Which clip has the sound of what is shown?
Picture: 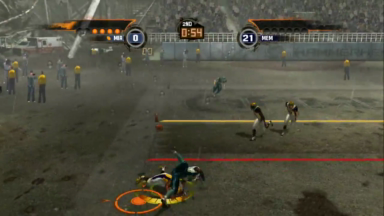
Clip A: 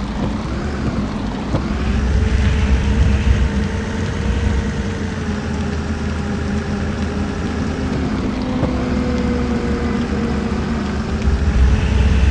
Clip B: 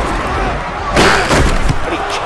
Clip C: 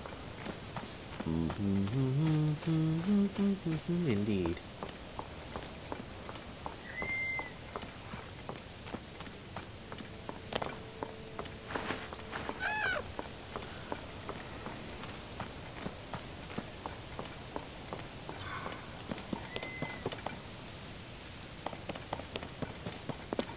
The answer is B